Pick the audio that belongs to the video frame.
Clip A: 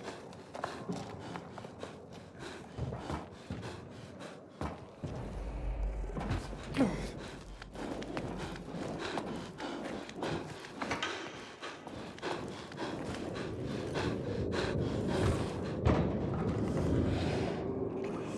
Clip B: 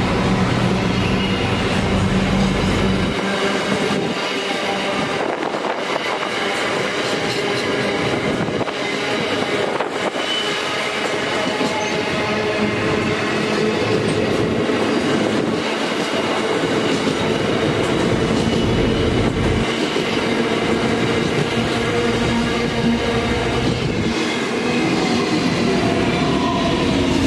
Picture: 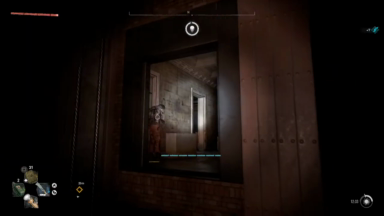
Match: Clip A